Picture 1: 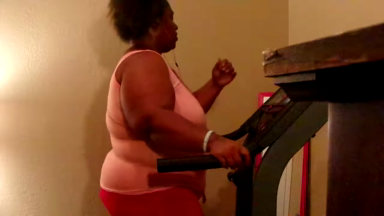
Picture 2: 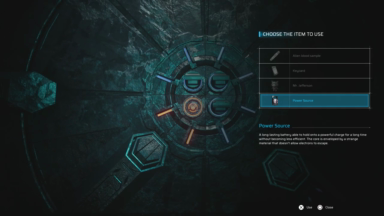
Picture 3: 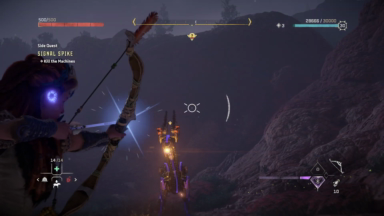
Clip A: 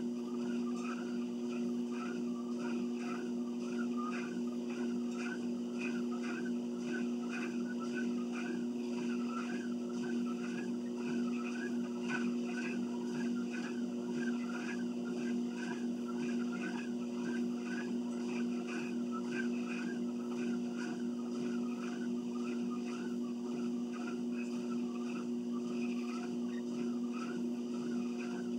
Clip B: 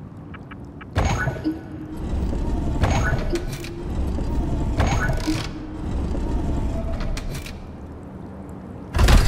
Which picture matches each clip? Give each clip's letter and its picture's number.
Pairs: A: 1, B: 2